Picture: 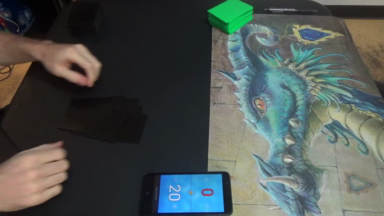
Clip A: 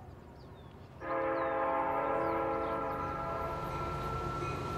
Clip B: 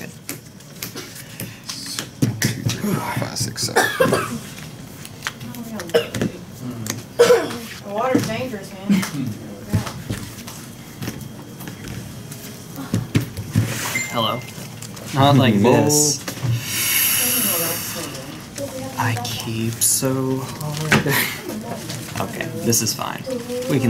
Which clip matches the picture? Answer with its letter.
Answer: B